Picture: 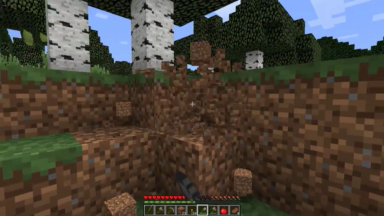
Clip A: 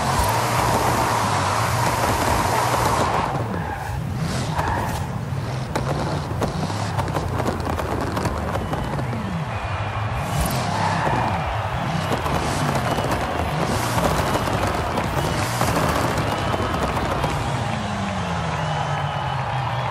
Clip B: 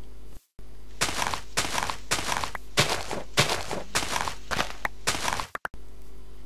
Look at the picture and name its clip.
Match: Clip B